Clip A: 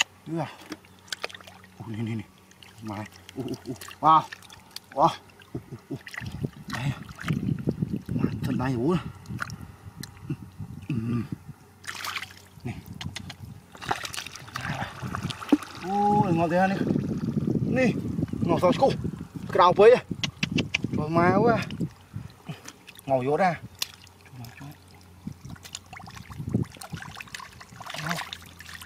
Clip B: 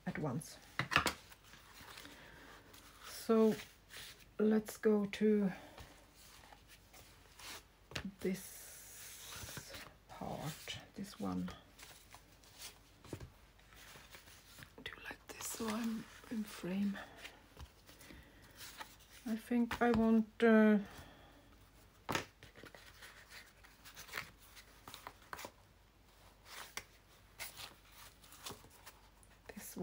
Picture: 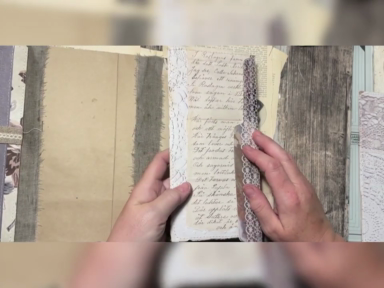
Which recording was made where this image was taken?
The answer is B